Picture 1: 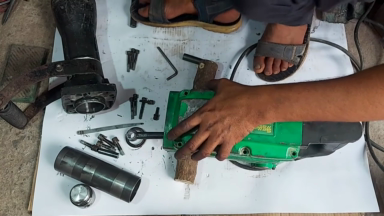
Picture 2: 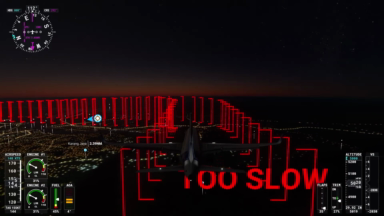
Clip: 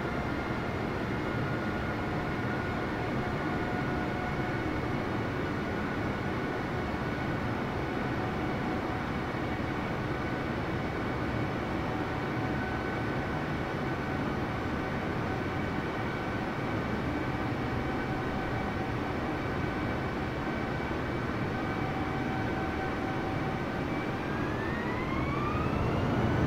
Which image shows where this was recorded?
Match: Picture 2